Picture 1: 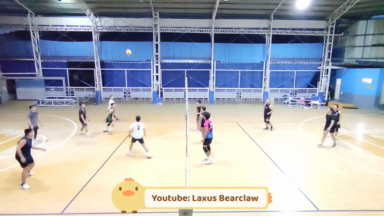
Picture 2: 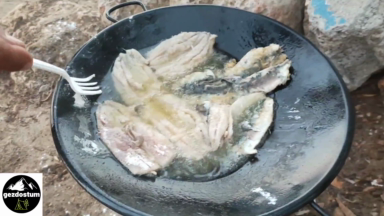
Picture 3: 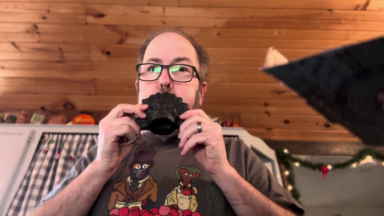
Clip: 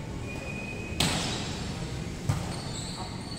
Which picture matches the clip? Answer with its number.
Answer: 1